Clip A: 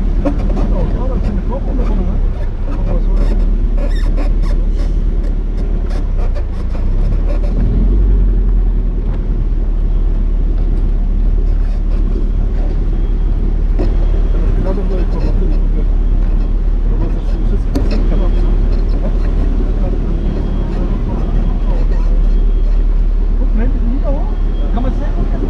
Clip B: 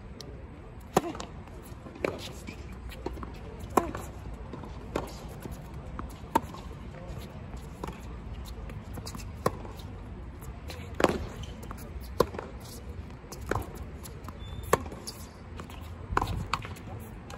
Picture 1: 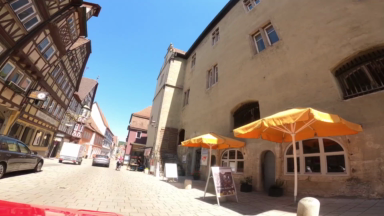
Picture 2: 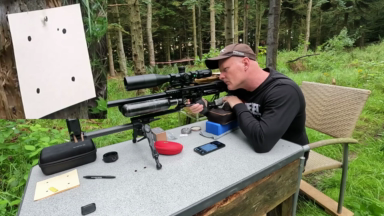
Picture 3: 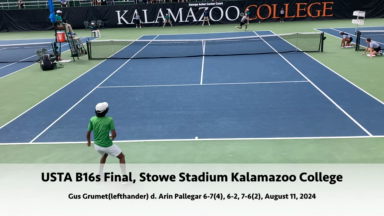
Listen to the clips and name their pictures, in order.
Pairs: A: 1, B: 3